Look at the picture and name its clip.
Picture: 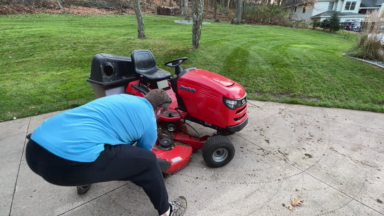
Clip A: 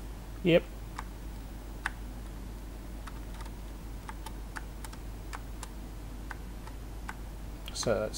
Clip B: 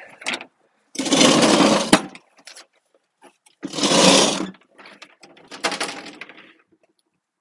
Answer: B